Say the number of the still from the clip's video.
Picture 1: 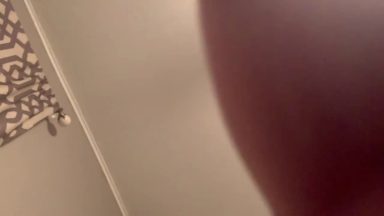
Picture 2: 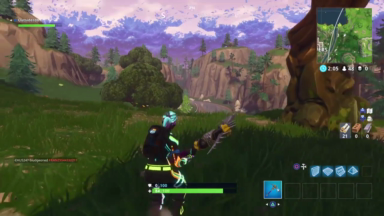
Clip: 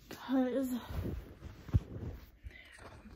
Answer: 1